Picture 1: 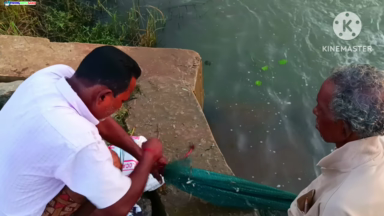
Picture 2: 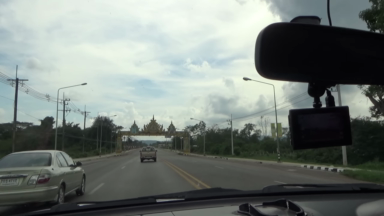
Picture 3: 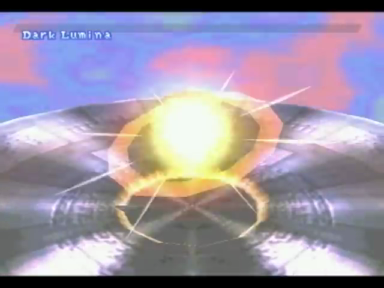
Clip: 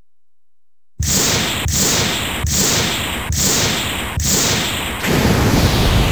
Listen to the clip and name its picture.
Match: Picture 3